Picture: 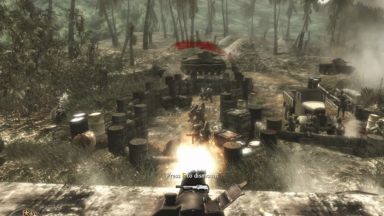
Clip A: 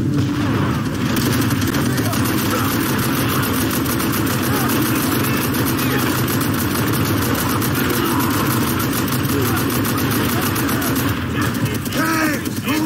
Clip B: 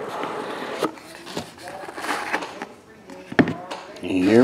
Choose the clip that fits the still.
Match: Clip A